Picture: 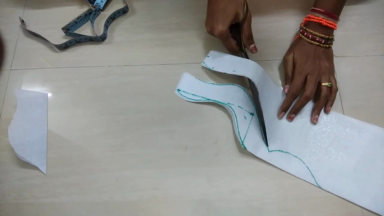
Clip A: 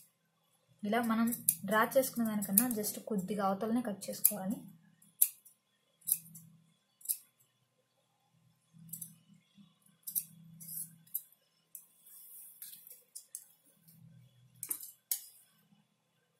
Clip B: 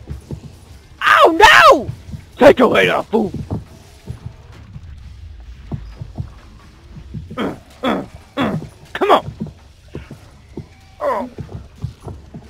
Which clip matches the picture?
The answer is A